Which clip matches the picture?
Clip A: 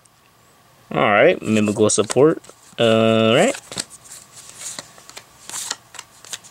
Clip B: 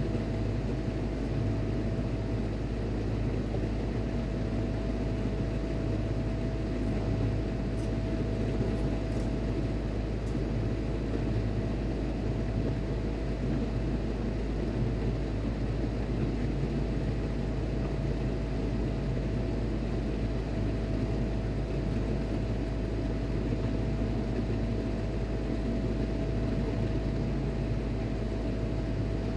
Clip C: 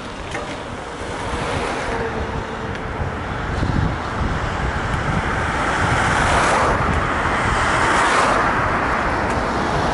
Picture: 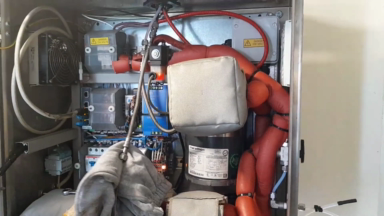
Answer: B